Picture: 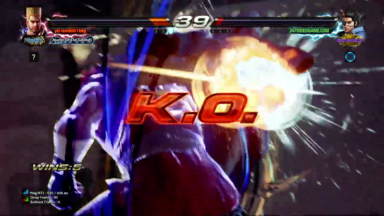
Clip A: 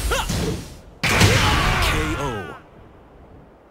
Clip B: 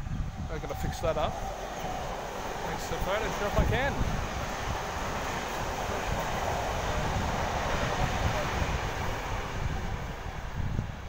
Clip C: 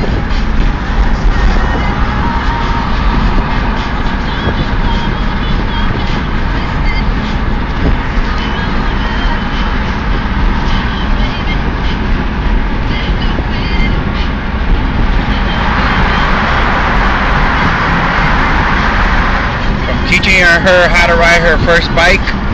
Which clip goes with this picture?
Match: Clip A